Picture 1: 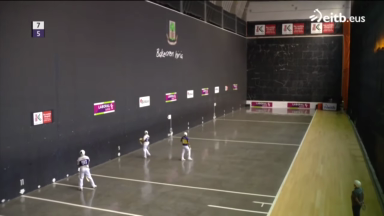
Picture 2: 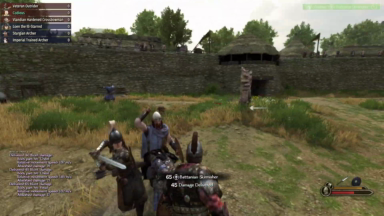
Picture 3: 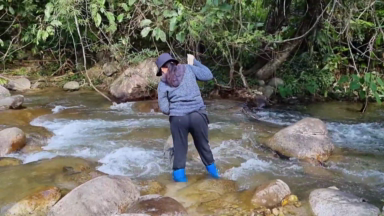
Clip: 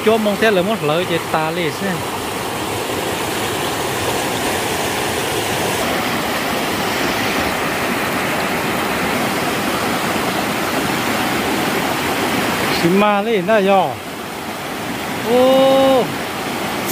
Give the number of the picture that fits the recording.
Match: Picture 3